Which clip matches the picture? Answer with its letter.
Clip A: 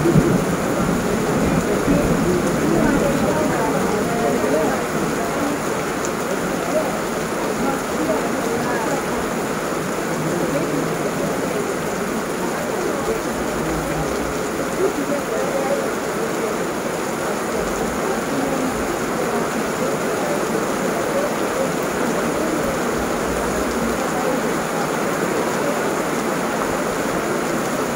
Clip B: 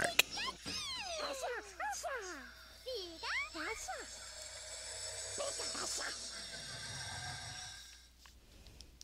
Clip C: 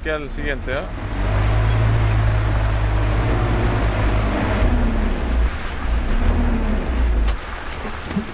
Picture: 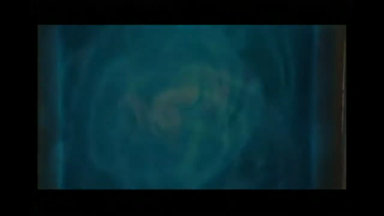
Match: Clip B